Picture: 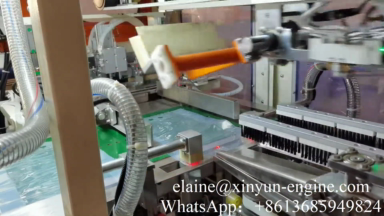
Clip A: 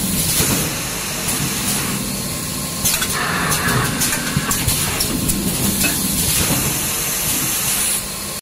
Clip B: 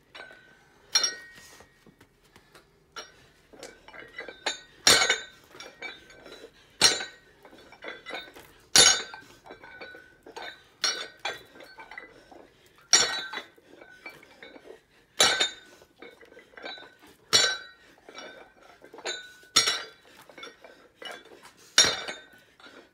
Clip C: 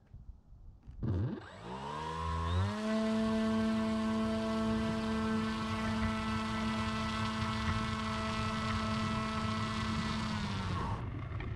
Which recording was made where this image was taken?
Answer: A